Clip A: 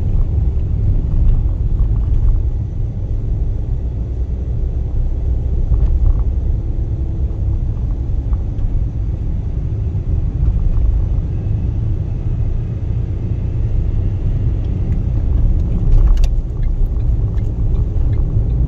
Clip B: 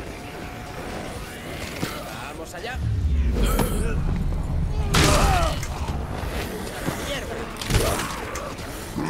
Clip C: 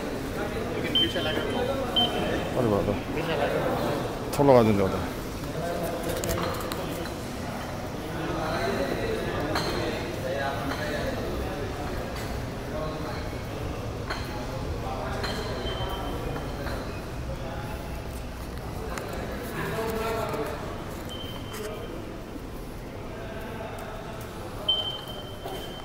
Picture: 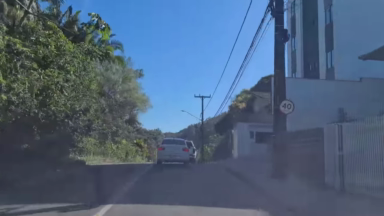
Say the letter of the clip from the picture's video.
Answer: A